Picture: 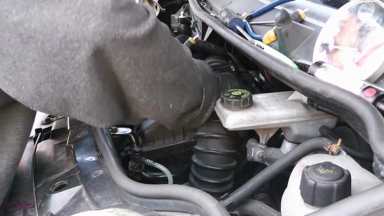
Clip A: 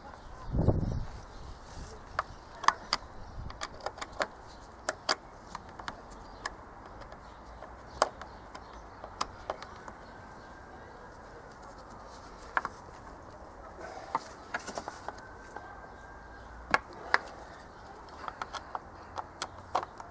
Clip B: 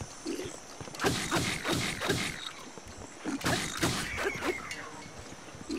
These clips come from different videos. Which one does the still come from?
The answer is A